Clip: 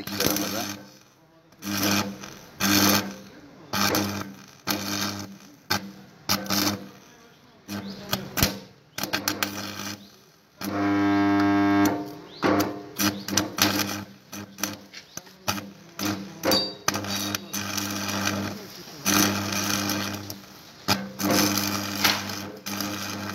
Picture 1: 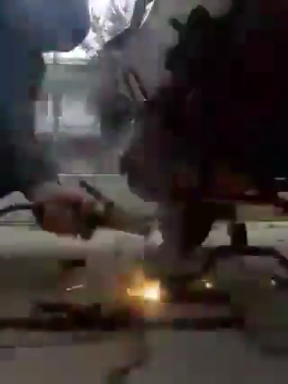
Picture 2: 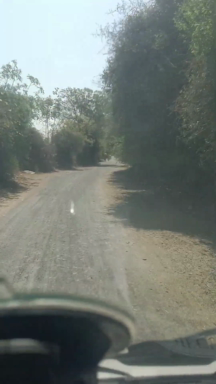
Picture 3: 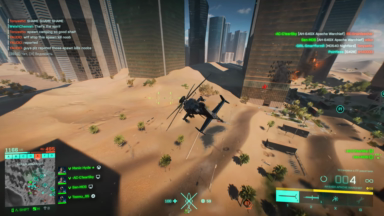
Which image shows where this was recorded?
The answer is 1